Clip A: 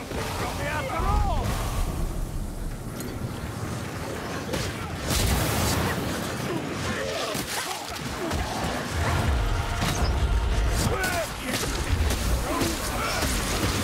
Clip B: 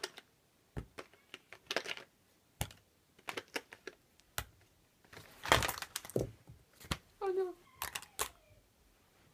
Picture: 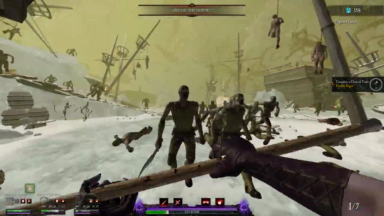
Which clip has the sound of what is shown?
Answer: A